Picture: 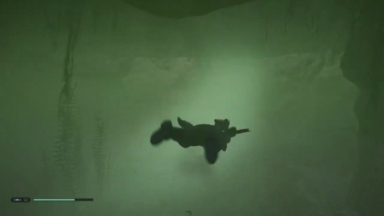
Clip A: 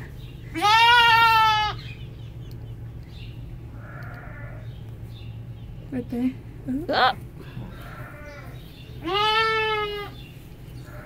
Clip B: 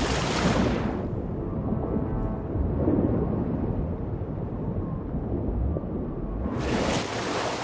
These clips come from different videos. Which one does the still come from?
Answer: B